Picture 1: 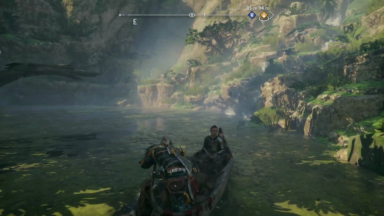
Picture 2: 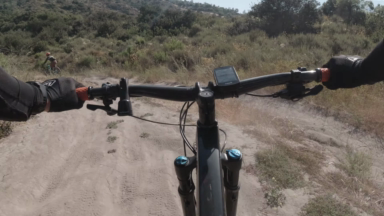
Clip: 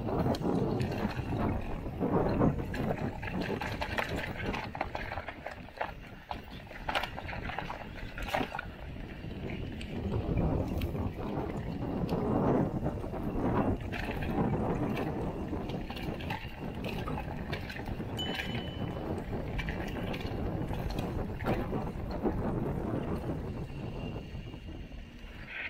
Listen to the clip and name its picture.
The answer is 2